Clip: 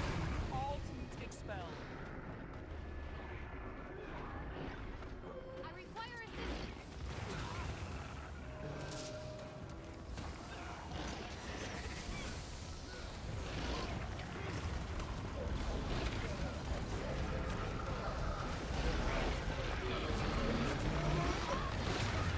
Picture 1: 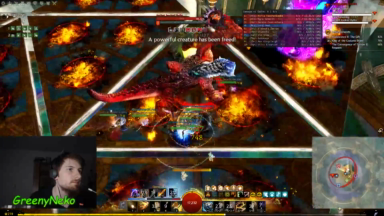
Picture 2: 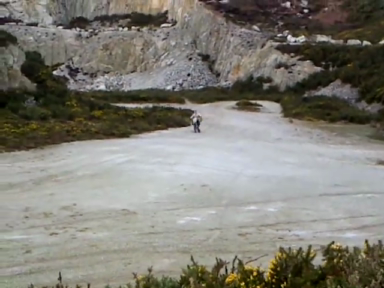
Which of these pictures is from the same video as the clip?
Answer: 1